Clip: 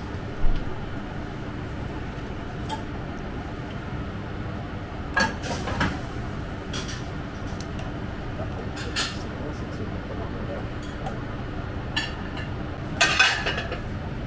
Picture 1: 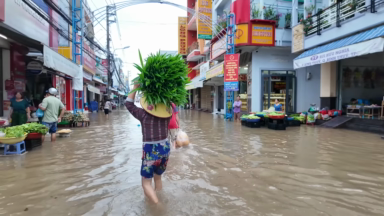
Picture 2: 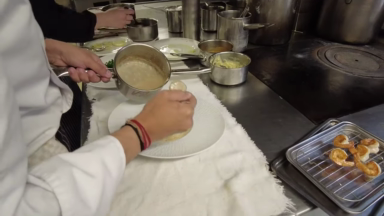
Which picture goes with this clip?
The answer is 2